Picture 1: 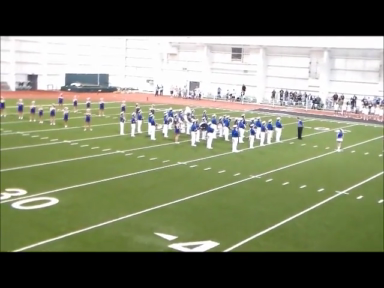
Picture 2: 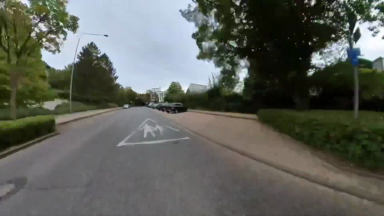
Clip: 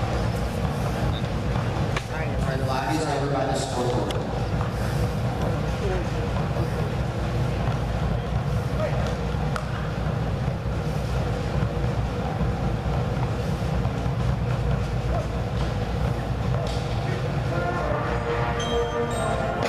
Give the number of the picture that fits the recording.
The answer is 1